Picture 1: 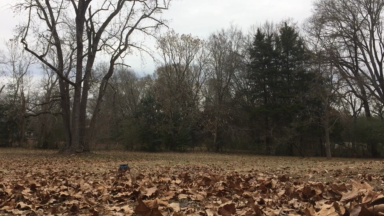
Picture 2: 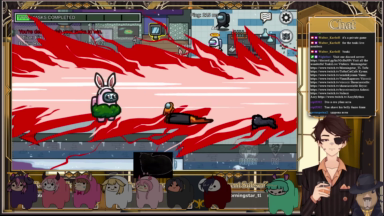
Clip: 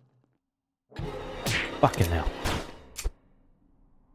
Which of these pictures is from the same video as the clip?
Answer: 2